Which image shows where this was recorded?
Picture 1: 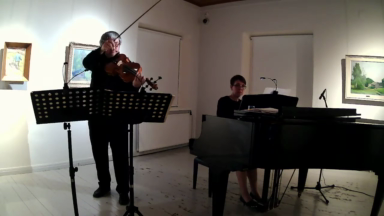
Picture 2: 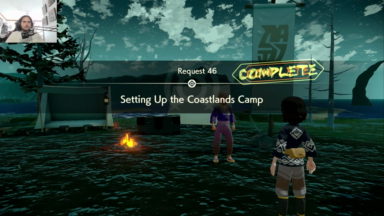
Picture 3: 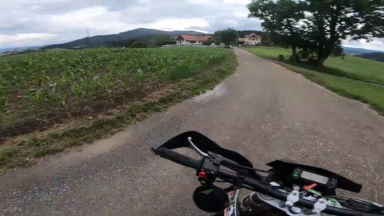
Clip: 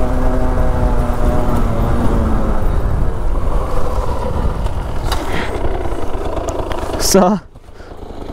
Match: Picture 3